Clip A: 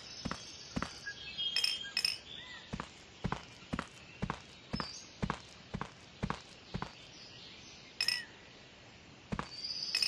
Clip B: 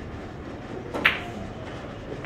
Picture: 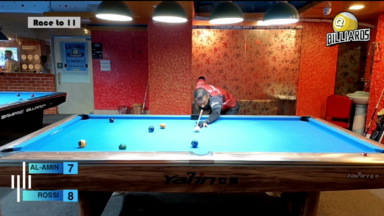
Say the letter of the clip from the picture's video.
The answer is B